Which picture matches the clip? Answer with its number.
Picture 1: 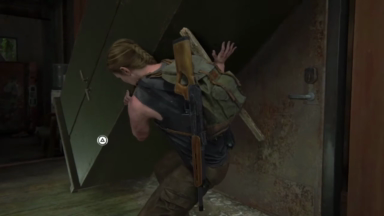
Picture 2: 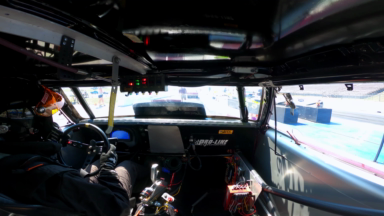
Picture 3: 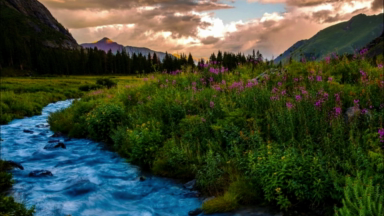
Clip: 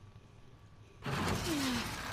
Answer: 1